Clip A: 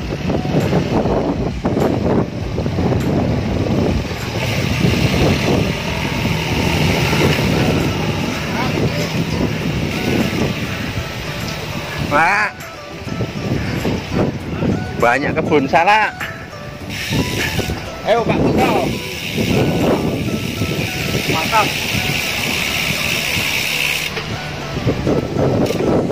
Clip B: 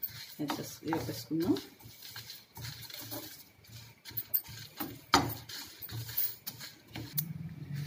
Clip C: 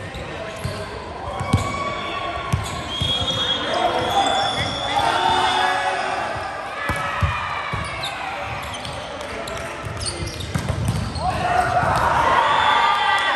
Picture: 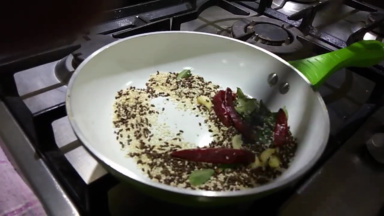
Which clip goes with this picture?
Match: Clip B